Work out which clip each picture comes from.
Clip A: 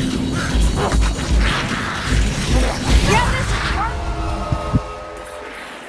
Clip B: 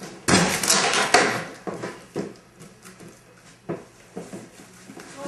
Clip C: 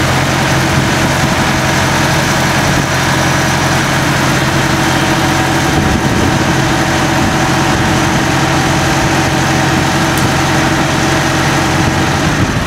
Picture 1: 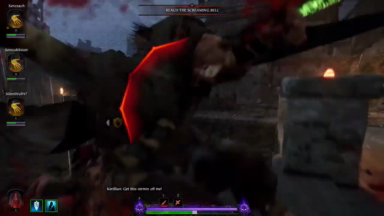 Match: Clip A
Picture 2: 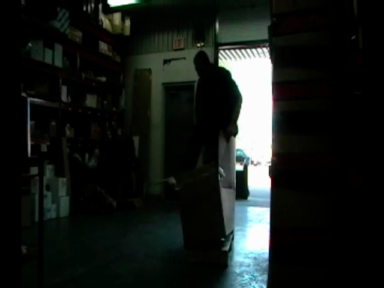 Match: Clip B